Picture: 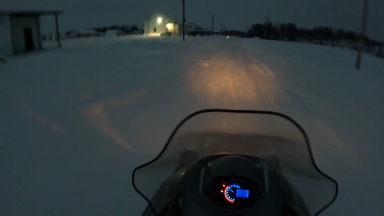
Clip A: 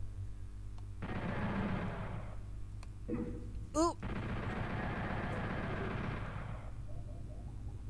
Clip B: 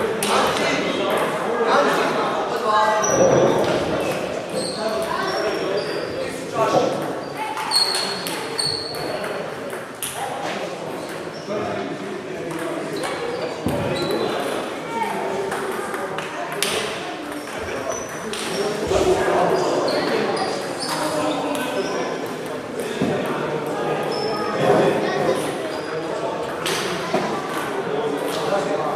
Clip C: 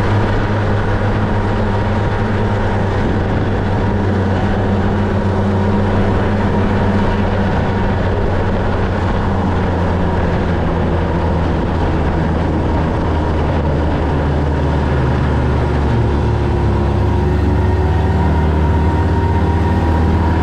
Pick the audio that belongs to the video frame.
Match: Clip C